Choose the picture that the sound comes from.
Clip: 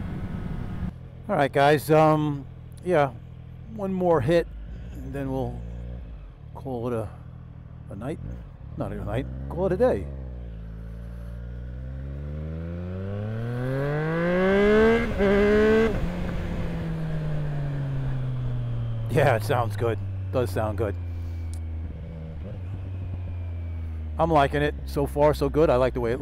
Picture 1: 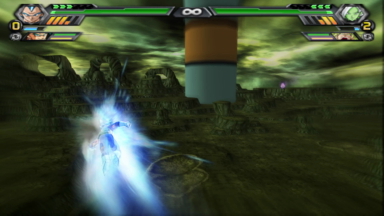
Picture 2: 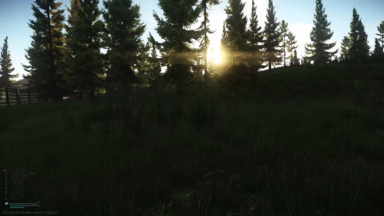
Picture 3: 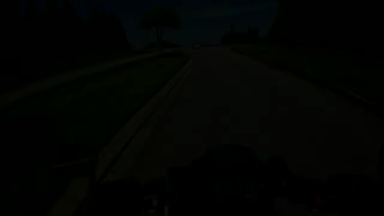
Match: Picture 3